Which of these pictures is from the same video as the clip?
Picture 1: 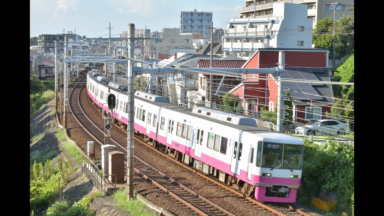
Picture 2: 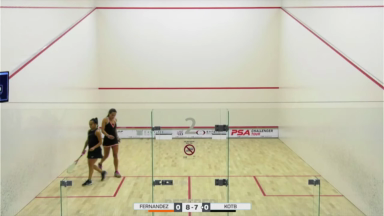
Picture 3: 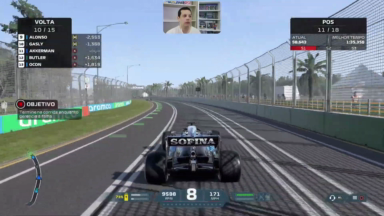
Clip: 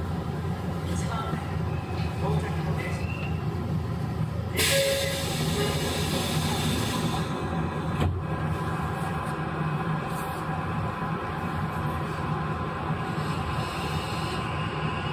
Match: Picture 1